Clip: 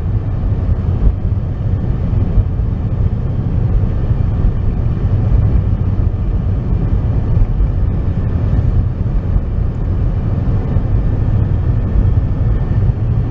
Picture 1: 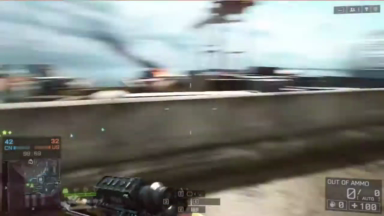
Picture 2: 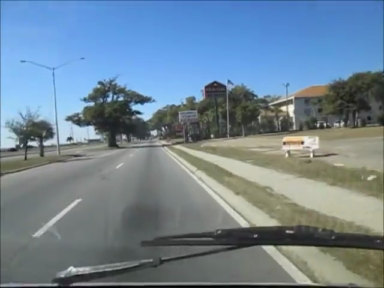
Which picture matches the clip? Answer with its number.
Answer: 2